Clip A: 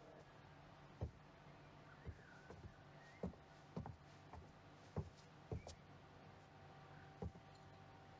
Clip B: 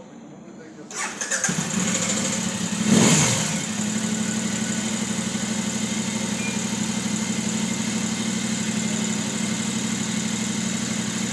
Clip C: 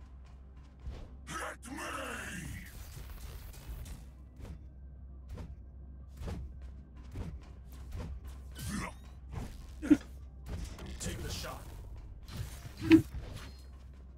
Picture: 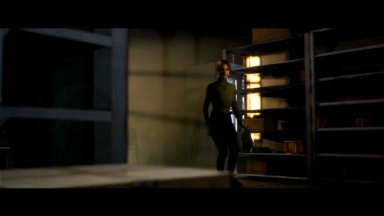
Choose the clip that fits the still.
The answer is A